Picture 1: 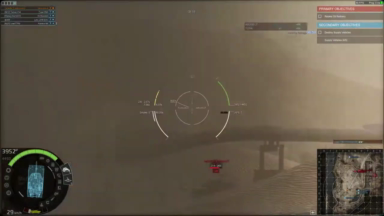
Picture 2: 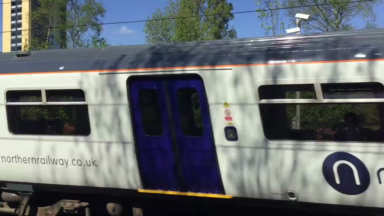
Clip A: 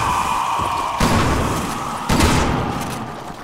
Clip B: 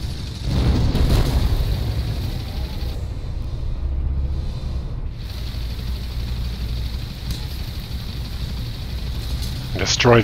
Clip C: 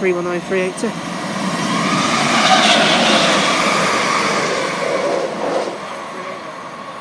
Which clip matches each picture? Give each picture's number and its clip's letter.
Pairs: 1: B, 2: C